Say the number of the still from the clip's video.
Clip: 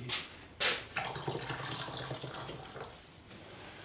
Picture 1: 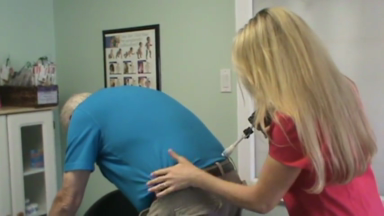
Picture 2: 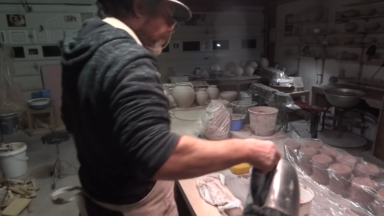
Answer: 2